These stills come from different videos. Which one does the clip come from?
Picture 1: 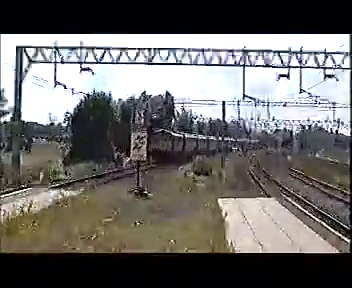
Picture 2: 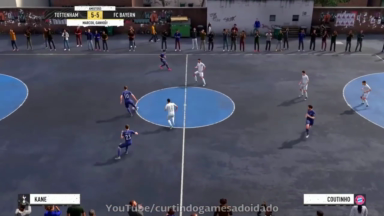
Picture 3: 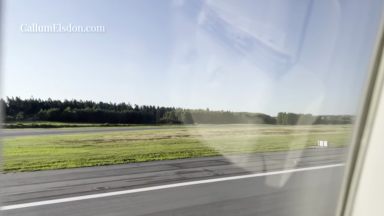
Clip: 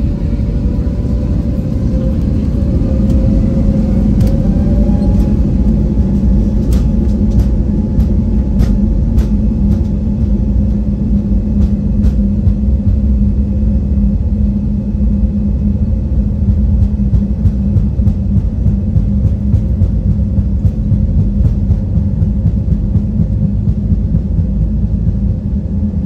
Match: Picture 3